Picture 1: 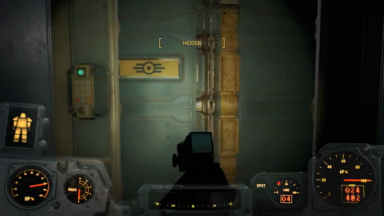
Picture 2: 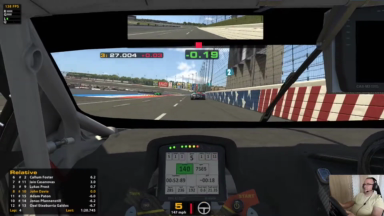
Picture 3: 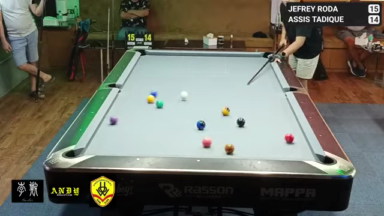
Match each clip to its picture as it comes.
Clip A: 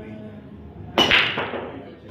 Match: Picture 3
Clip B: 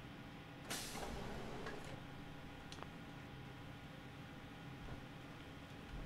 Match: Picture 1